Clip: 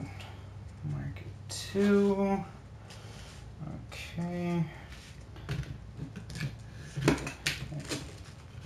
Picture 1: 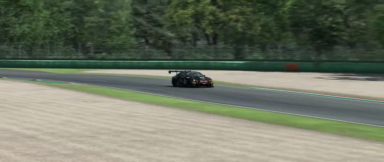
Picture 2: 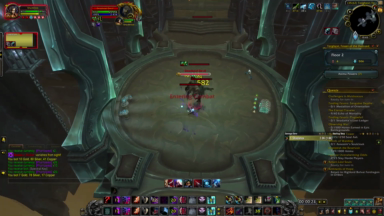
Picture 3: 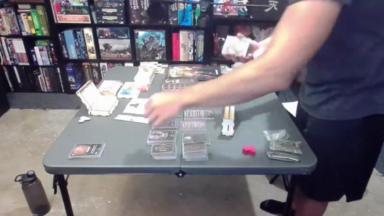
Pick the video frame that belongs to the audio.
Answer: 3